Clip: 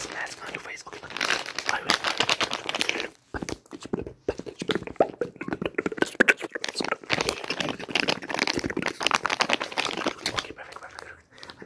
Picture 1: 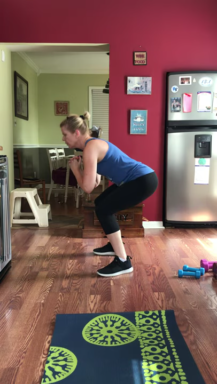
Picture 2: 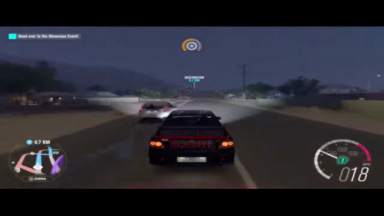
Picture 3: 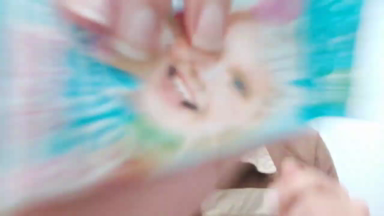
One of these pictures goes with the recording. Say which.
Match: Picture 3